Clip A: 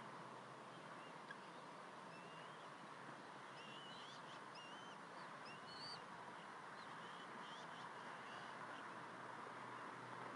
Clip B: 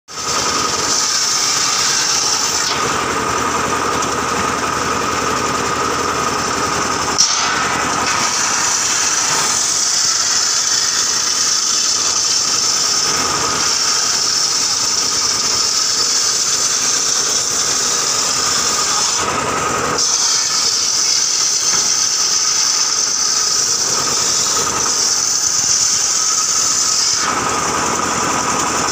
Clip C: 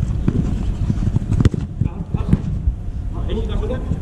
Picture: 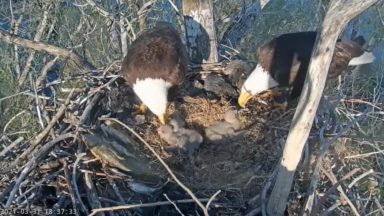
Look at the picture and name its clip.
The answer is A